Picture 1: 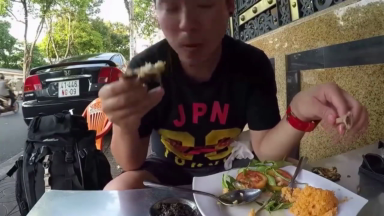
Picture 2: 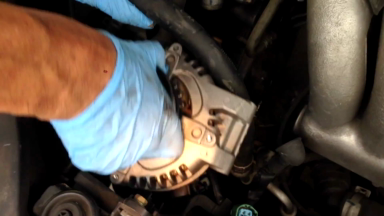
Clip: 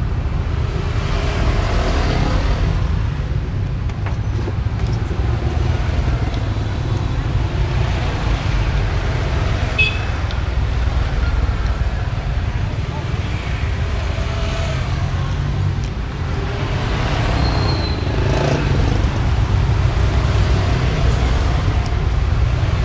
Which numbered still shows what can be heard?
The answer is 1